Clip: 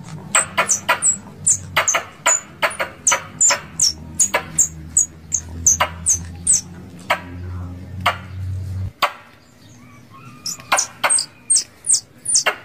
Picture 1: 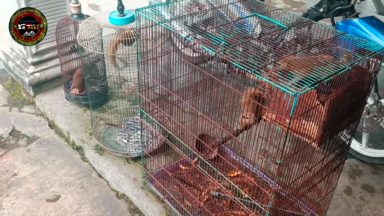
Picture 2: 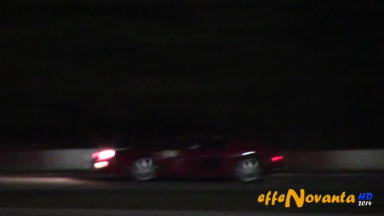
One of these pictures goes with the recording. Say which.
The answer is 1